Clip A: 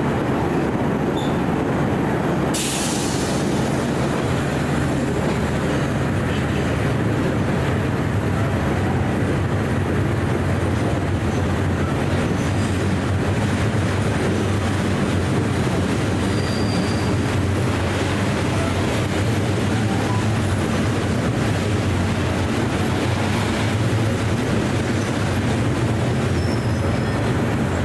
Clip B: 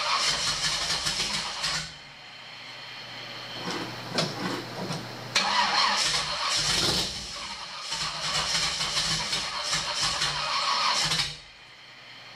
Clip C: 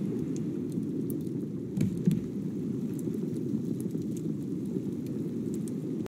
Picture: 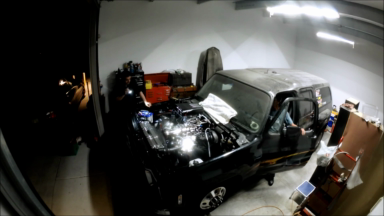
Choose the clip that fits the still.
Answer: B